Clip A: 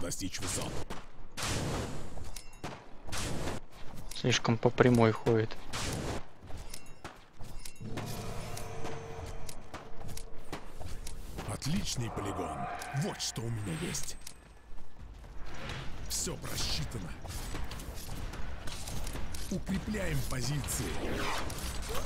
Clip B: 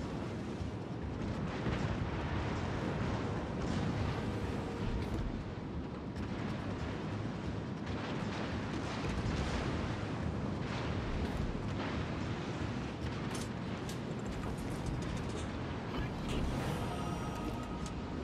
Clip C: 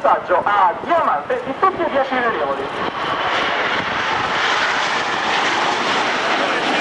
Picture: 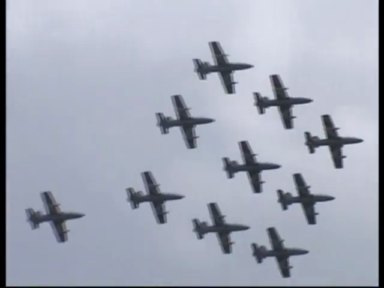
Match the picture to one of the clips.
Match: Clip C